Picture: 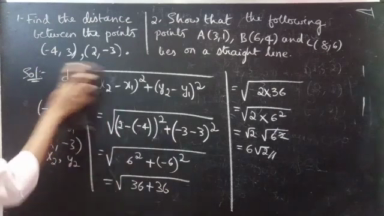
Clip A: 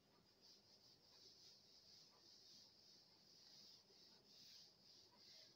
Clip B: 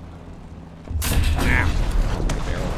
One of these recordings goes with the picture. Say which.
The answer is A